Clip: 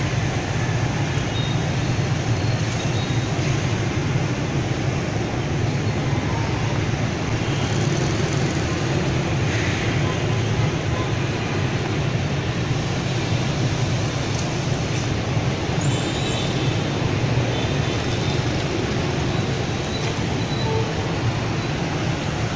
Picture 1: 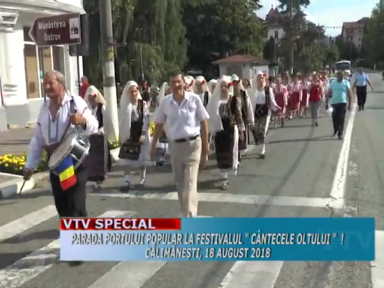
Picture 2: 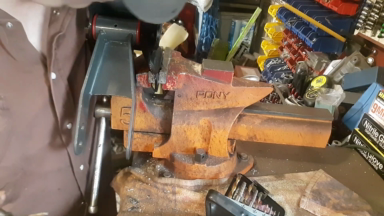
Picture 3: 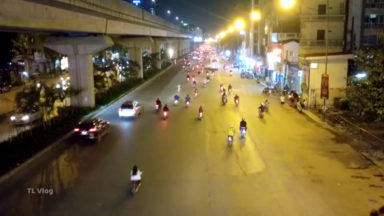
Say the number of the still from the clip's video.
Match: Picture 3